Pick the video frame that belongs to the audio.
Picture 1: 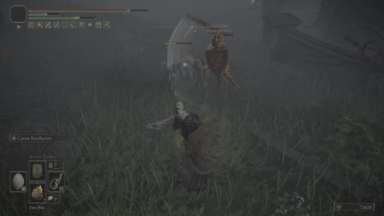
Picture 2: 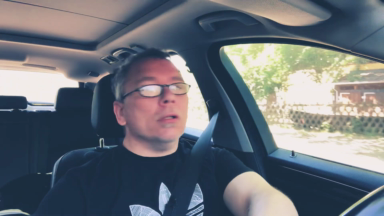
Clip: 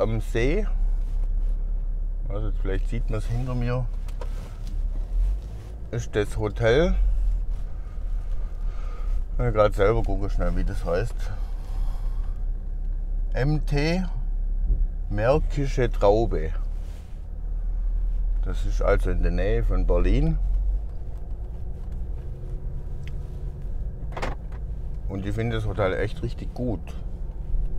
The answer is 2